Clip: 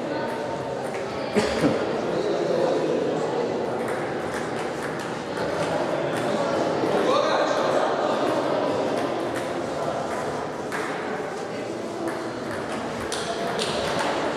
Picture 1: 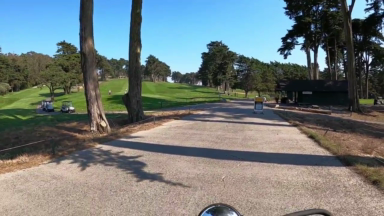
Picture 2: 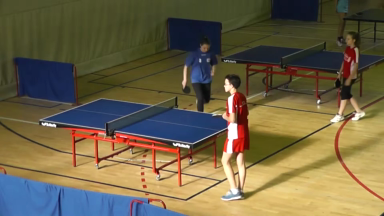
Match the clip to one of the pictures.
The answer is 2